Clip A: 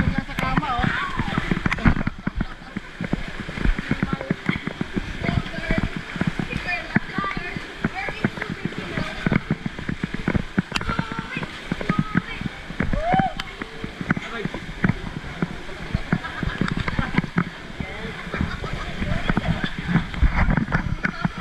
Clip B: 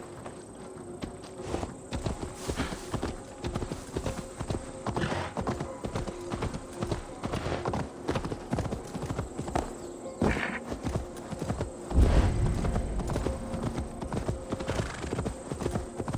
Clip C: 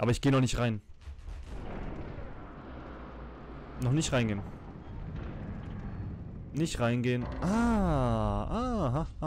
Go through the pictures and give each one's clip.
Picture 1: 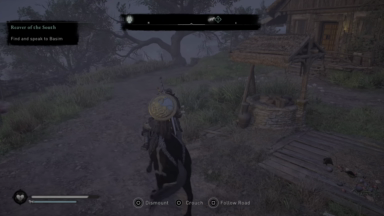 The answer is B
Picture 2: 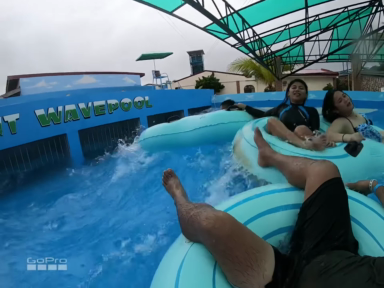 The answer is A